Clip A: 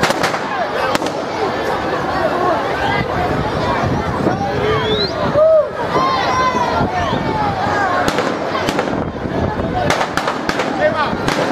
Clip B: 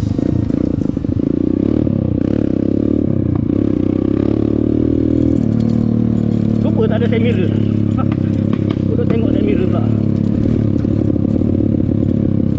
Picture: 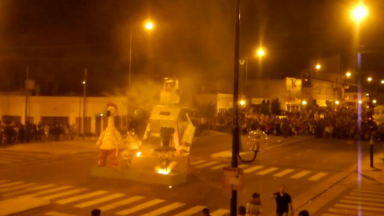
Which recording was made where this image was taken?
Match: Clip A